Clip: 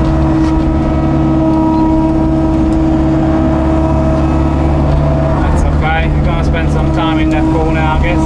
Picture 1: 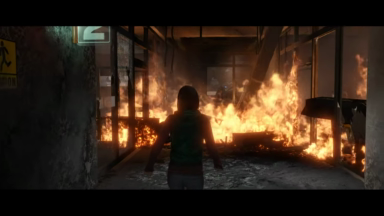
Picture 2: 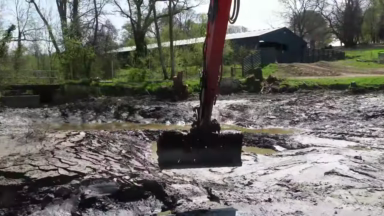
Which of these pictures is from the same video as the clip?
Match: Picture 2